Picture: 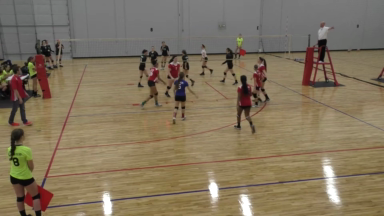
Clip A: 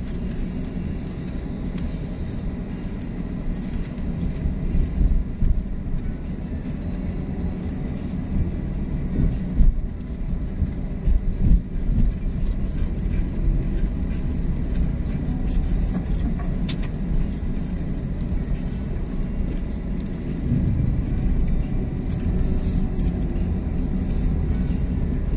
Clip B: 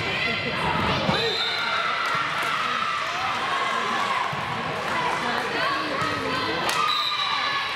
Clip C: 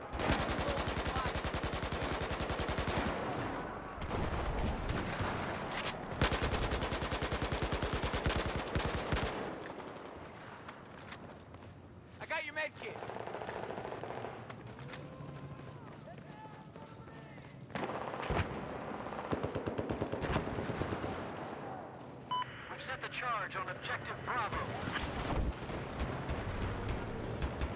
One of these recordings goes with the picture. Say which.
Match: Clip B